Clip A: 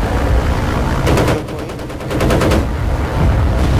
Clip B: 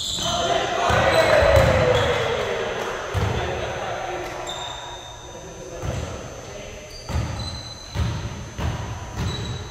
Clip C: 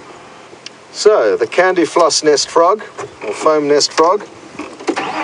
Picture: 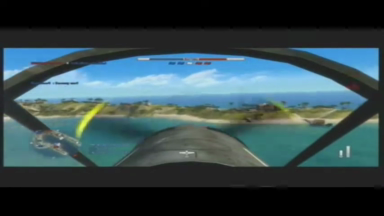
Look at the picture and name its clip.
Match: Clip A